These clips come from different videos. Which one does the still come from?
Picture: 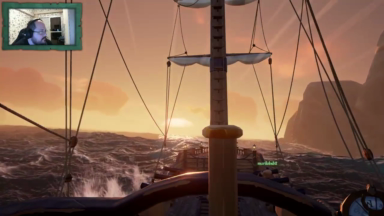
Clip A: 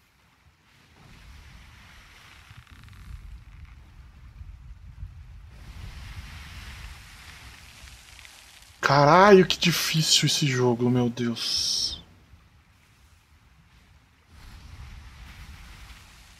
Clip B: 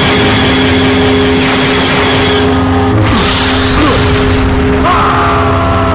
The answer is A